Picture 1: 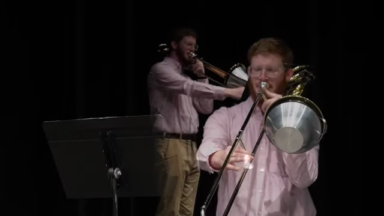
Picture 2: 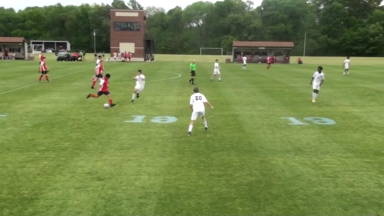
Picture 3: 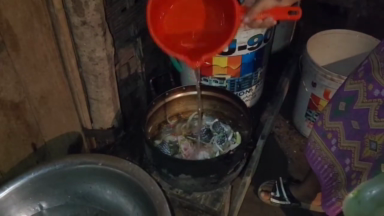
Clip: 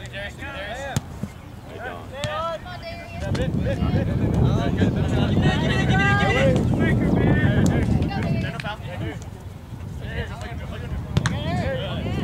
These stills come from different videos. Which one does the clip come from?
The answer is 2